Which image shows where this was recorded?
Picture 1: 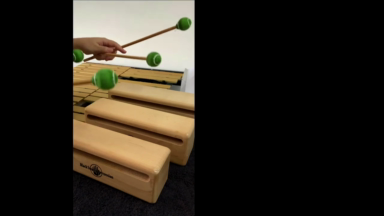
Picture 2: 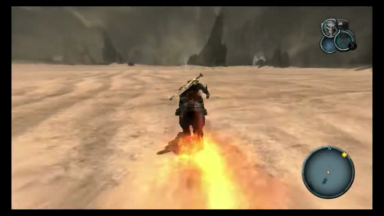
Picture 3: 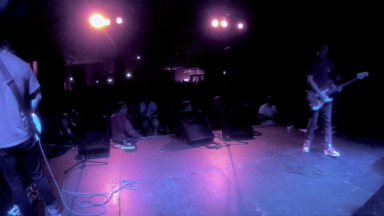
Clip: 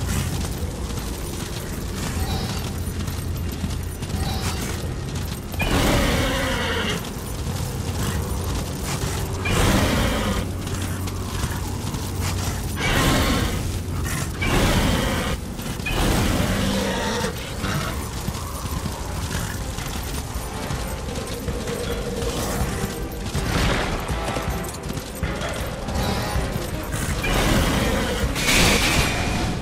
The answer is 2